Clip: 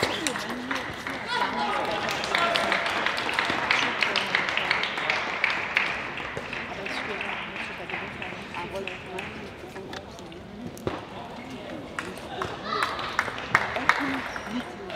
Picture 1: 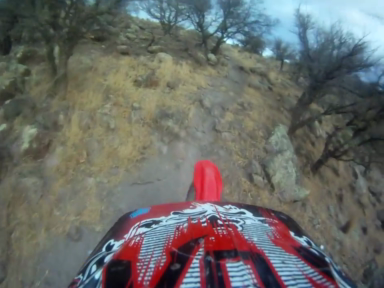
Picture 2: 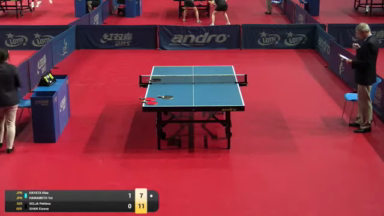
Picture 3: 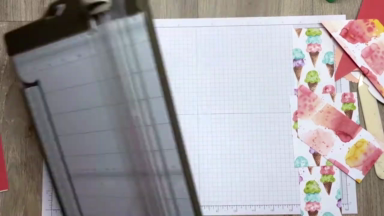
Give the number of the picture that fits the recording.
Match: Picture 2